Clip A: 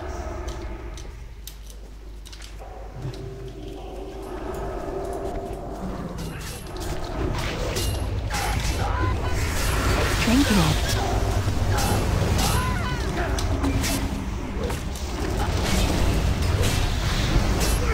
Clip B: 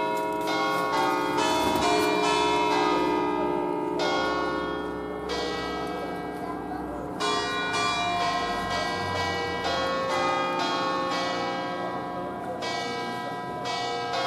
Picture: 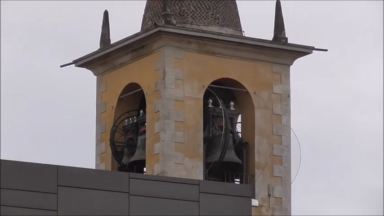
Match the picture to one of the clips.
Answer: B